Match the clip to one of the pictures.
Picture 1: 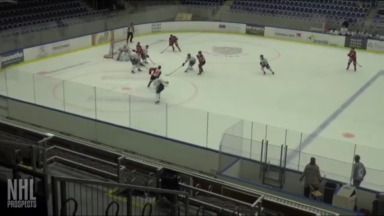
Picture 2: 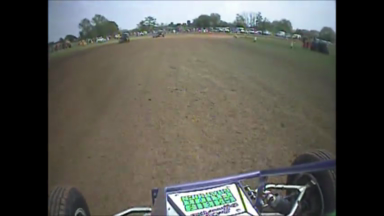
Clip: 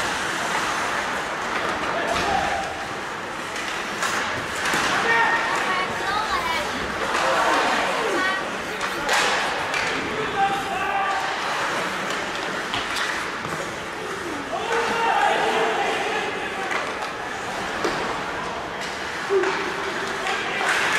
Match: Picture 1